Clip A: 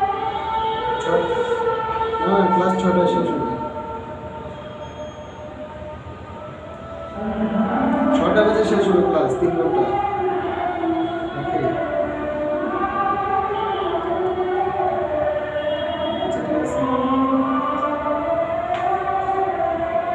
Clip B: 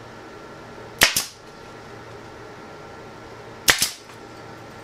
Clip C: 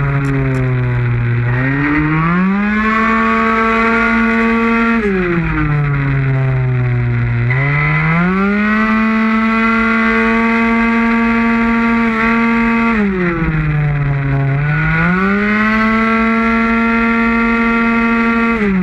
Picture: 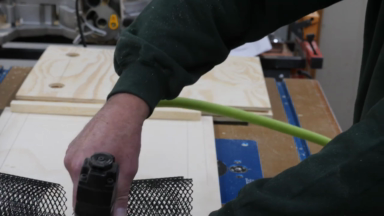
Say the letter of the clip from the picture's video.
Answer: B